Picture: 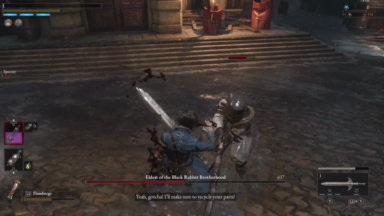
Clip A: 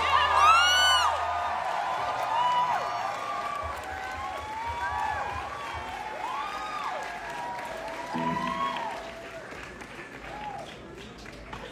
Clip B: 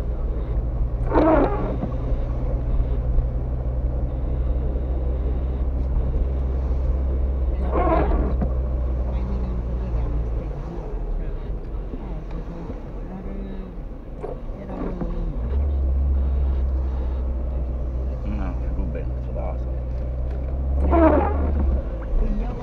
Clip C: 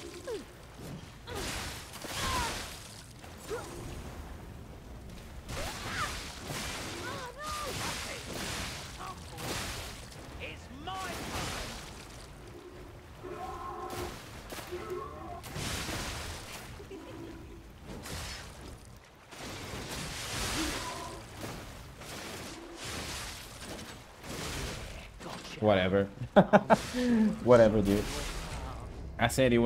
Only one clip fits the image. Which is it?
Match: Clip C